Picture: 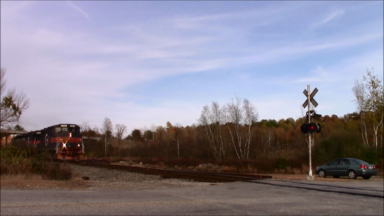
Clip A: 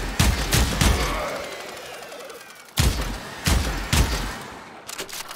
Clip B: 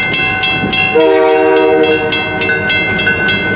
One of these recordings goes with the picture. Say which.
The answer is B